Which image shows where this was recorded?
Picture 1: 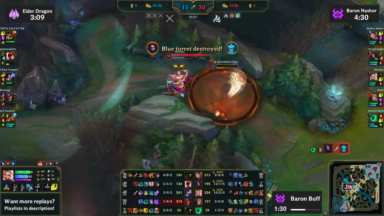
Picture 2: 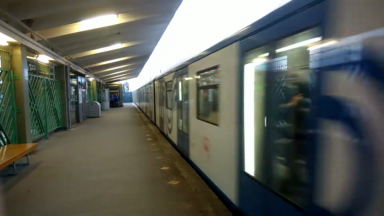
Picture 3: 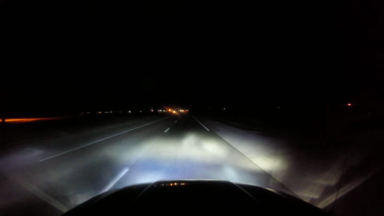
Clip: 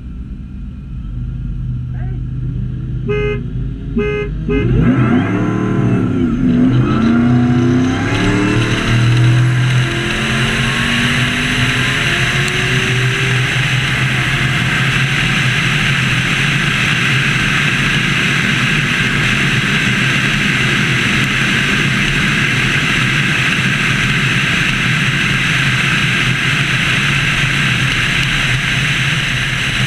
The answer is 3